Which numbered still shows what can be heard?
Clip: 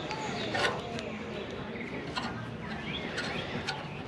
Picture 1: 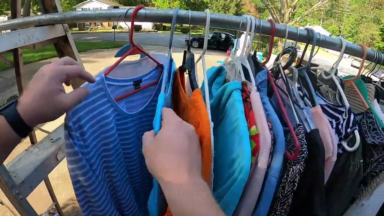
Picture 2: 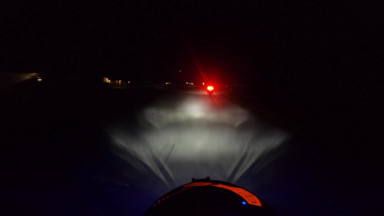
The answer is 1